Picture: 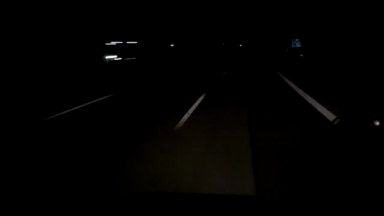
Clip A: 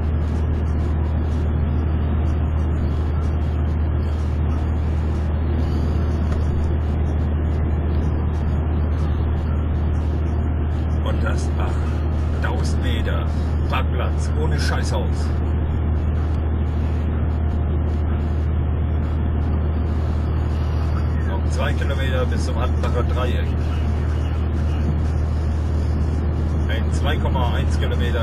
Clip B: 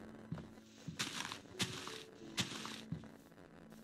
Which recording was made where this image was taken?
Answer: A